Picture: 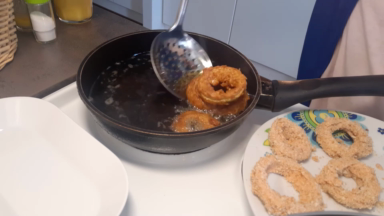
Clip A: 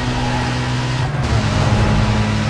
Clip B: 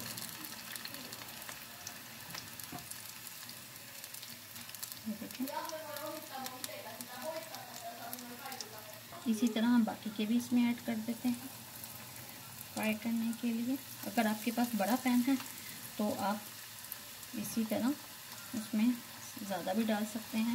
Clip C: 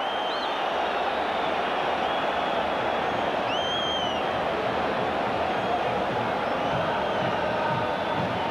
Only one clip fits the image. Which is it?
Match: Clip B